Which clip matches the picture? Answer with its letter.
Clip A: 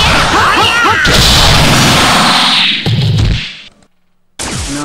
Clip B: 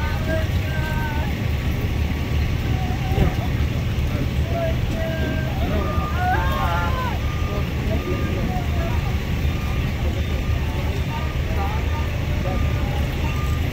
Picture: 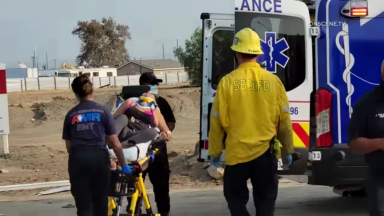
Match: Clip B